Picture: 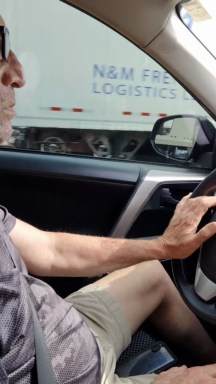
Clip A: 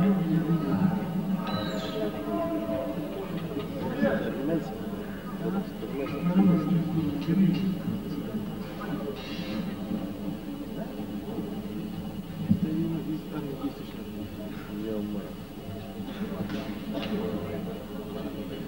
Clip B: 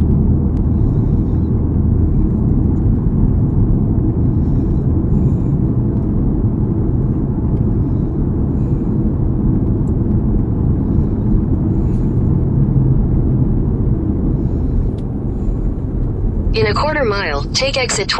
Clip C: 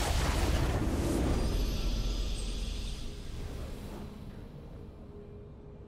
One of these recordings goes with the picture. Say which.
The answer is B